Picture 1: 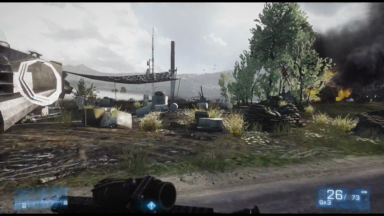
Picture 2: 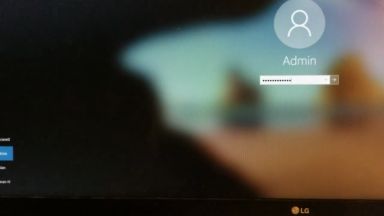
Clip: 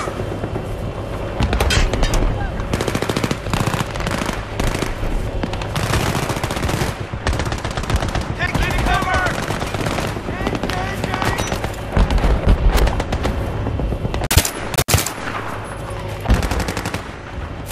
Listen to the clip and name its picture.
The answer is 1